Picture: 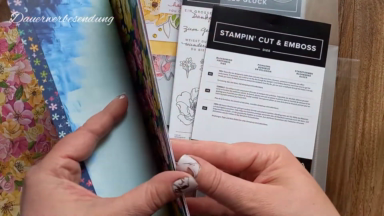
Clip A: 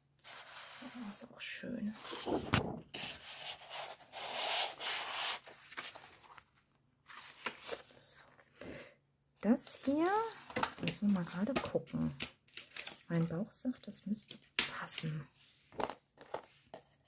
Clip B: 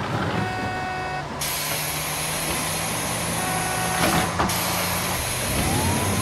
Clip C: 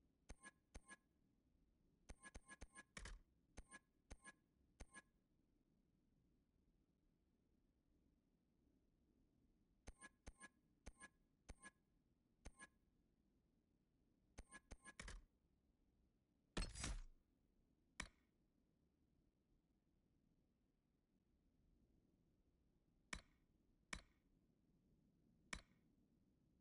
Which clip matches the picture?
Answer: A